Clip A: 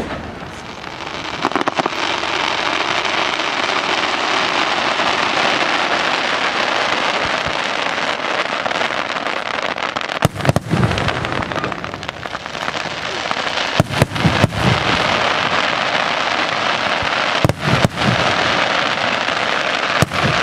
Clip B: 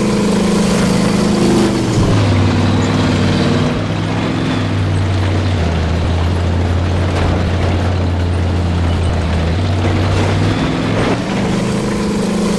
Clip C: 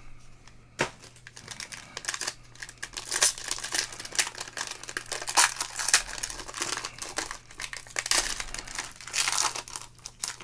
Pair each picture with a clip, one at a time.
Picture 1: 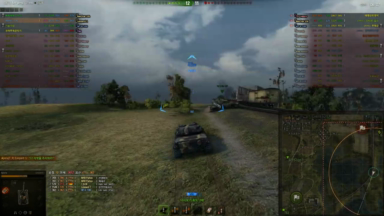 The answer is B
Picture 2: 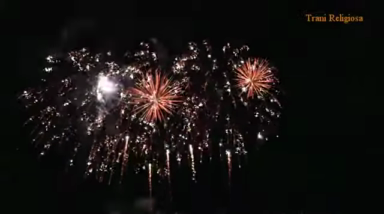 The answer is A